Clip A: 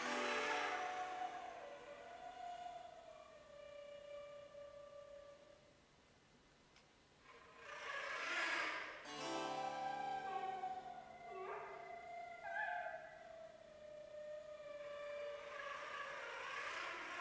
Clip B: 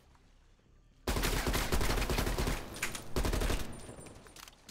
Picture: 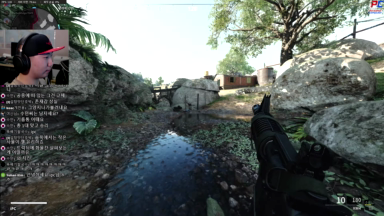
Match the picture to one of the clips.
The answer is B